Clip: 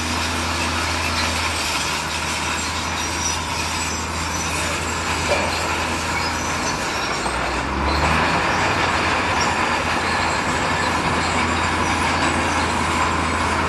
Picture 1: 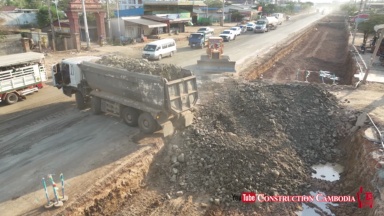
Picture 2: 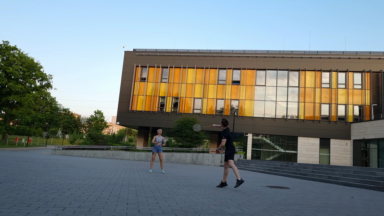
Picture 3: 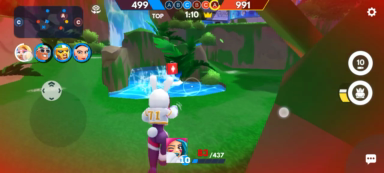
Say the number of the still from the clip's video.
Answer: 1